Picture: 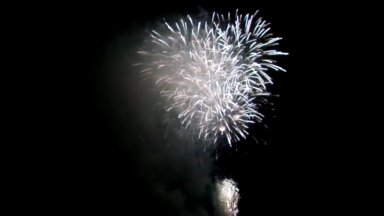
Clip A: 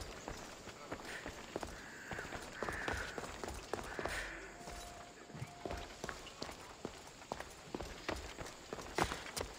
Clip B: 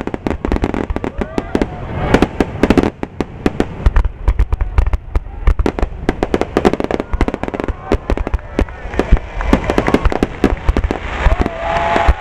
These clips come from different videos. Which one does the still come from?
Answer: B